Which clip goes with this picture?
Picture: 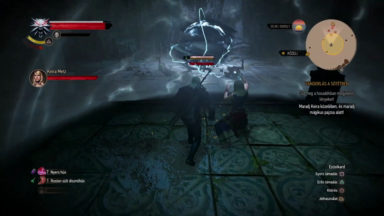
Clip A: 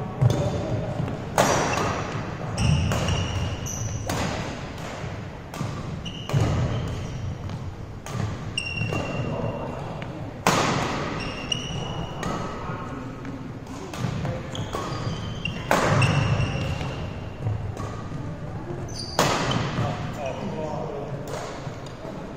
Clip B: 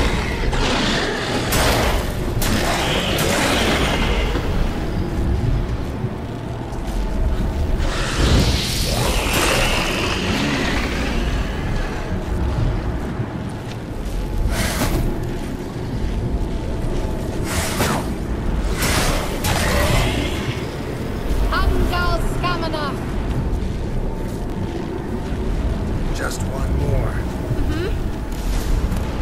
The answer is B